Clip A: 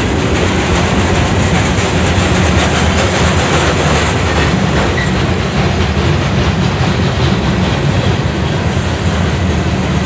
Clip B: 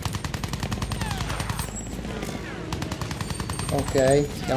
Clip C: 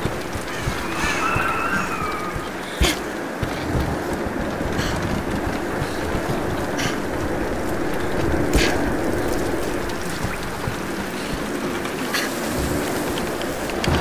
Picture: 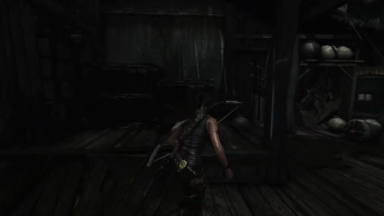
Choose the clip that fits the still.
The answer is C